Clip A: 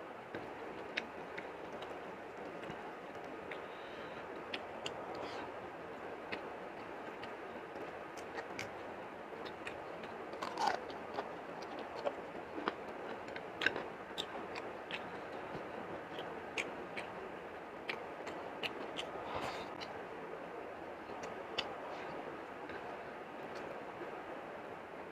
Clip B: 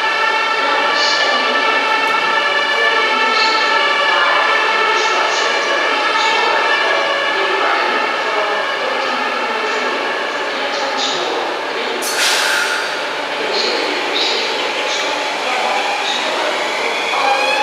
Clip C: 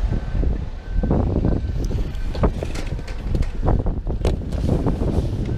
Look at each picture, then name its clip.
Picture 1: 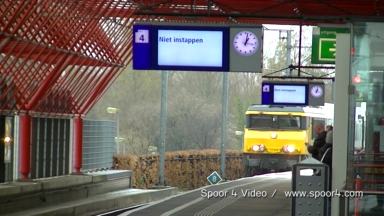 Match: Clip B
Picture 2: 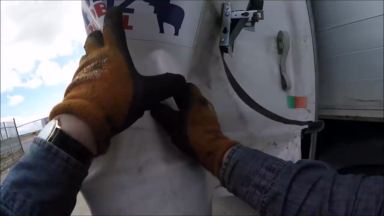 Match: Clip C